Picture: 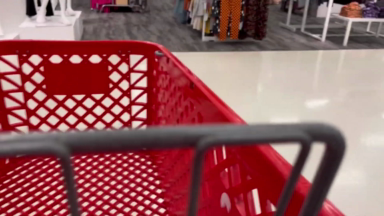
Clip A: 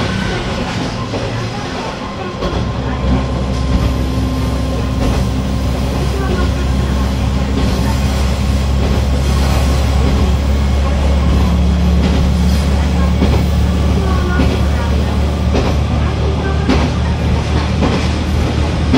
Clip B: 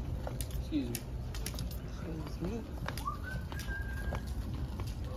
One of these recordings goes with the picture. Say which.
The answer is B